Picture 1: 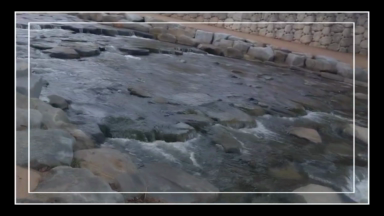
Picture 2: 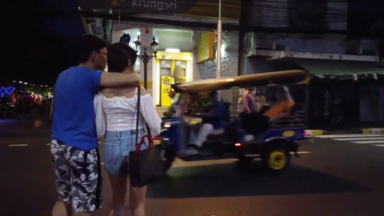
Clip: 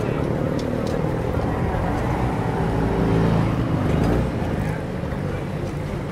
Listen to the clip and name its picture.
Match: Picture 2